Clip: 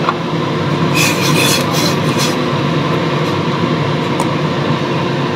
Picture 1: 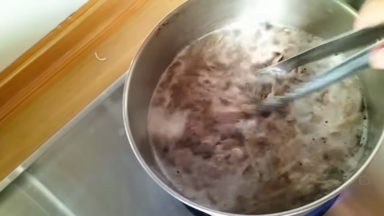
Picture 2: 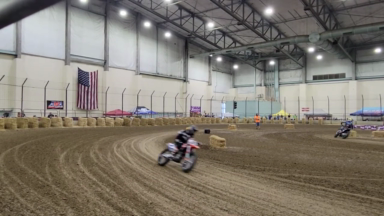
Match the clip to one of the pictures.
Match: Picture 1